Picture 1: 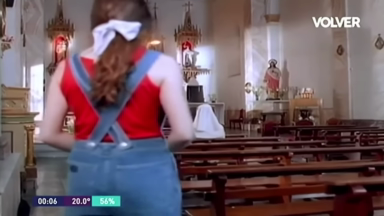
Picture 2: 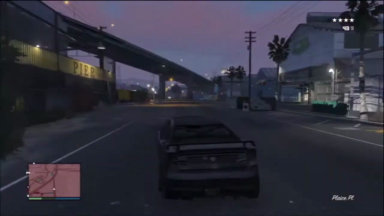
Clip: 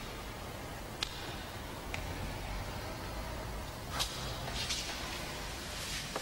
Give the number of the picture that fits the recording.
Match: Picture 1